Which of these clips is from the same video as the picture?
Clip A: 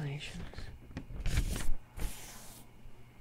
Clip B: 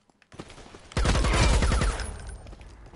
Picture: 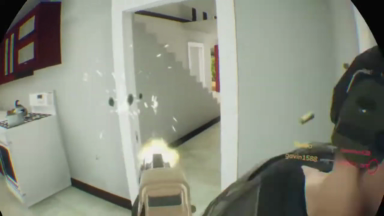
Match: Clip B